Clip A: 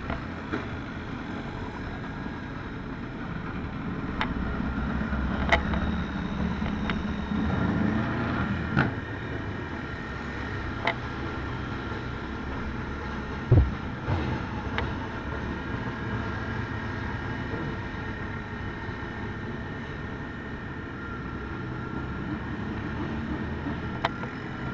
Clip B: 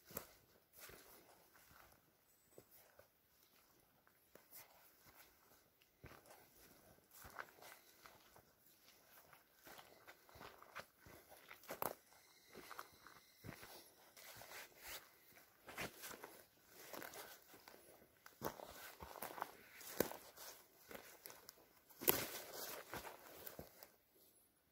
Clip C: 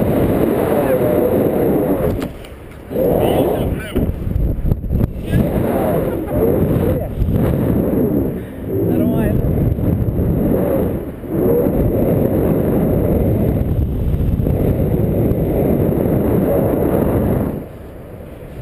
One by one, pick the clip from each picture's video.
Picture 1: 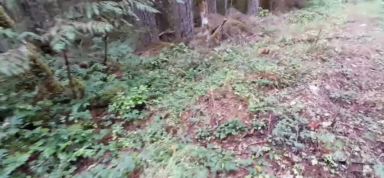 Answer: B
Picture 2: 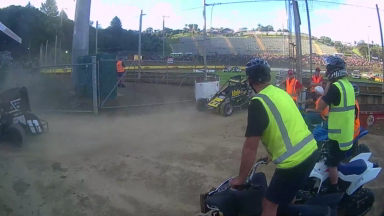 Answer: A